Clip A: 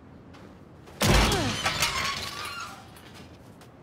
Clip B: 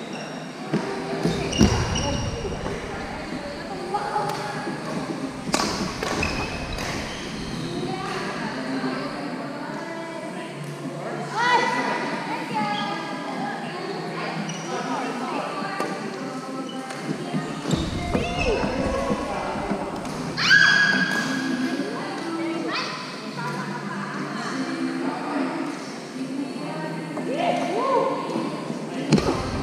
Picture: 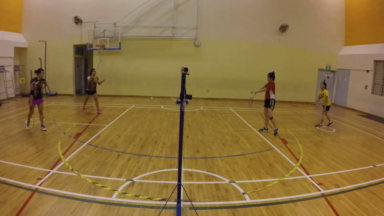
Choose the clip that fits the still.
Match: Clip B